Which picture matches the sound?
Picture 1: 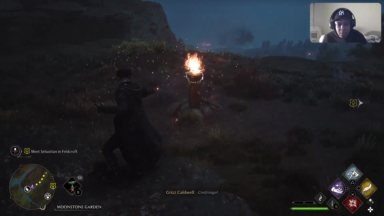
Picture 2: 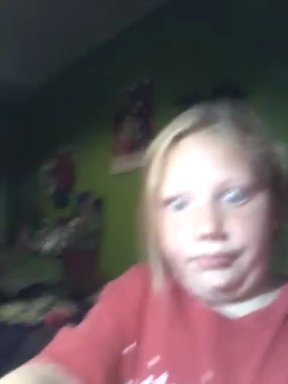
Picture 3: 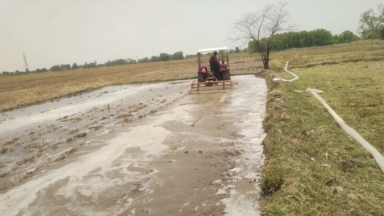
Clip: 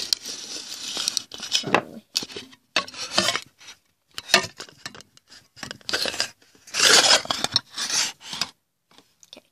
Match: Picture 2